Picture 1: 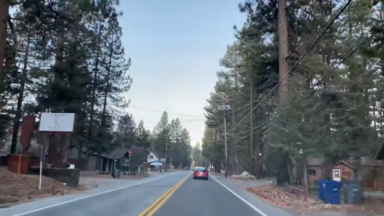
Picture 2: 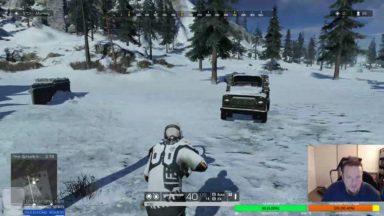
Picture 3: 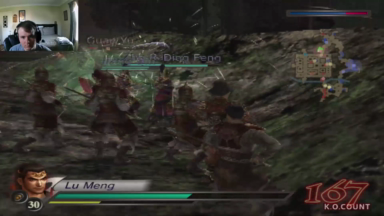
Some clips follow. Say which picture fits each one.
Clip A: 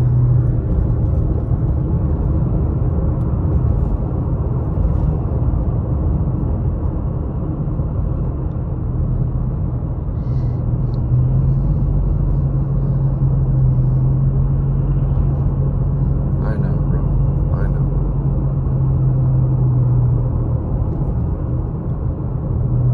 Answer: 1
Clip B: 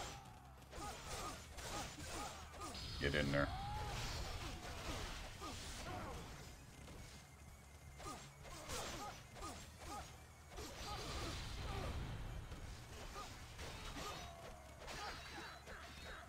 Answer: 3